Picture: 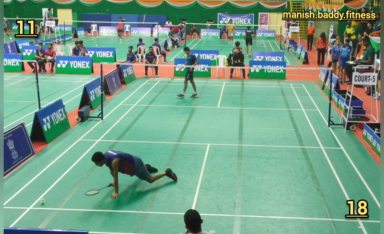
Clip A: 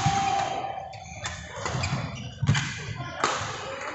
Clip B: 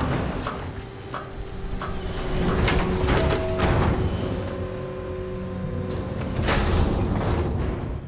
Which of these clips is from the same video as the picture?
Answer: A